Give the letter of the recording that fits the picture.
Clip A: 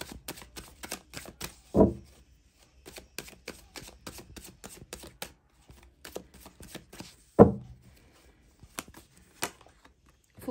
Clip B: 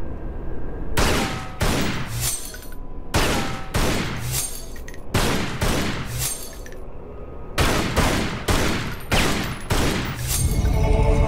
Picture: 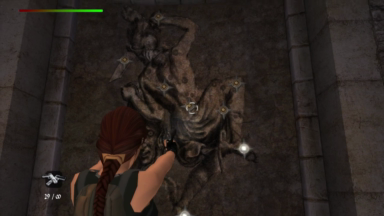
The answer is B